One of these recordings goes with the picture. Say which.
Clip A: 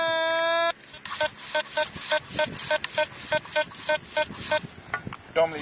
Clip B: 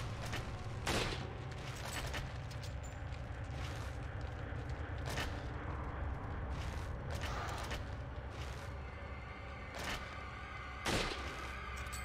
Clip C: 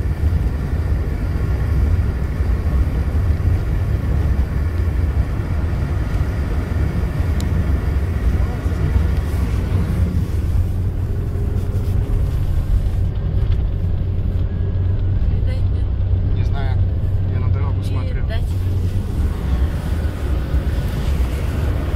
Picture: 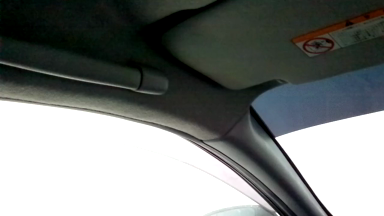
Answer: C